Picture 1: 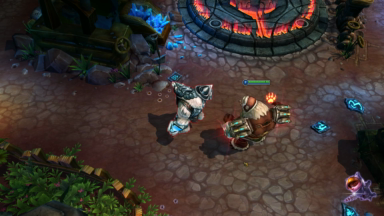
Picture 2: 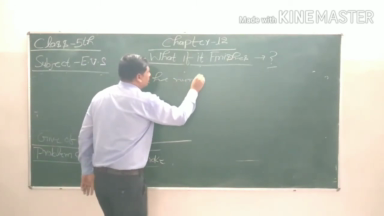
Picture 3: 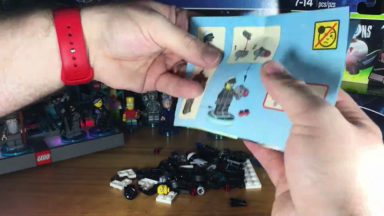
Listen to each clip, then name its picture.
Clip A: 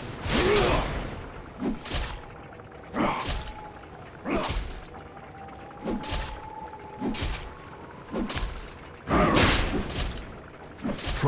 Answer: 1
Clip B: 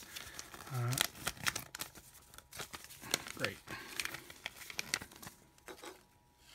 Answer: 3